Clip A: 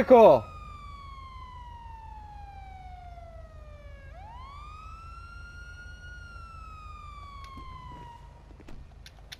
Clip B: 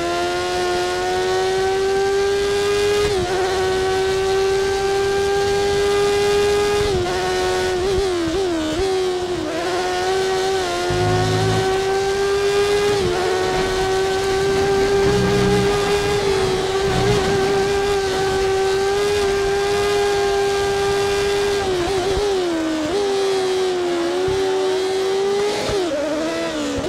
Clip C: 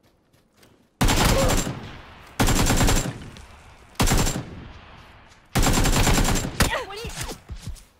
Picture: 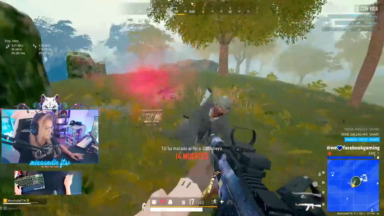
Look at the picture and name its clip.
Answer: C